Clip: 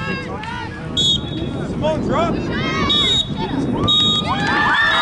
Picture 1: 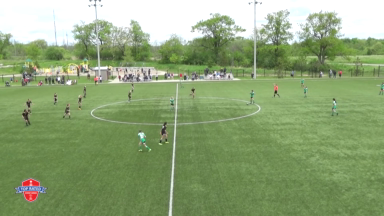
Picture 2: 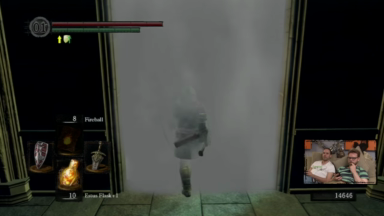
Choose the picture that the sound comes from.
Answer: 1